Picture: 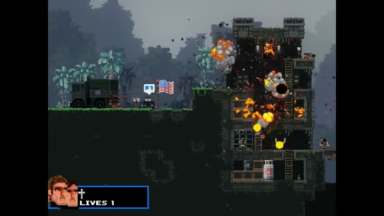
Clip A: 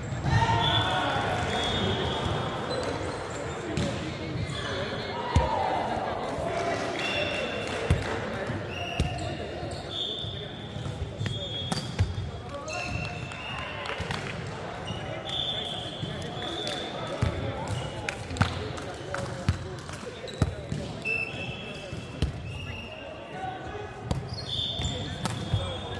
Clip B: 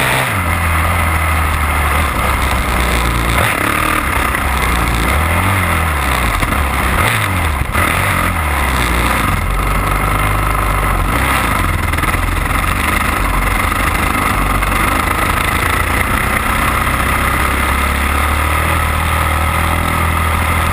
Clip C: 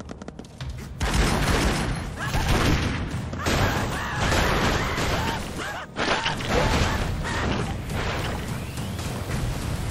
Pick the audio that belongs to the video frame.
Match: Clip C